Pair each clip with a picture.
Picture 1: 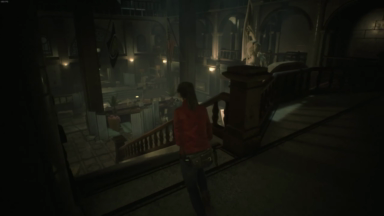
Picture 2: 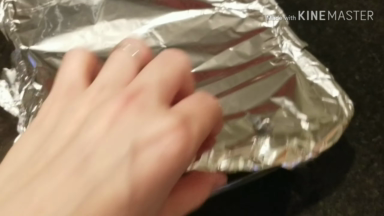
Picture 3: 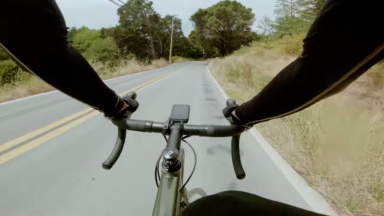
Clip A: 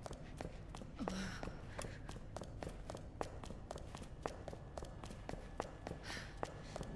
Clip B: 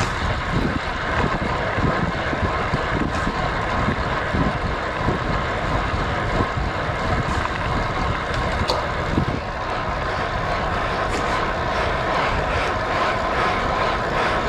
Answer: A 1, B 3